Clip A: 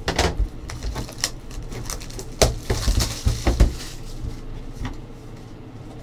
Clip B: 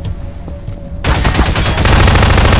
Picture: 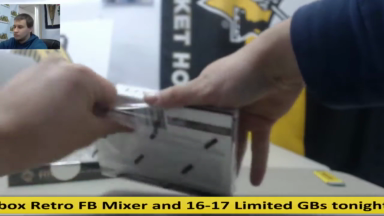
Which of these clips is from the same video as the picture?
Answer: A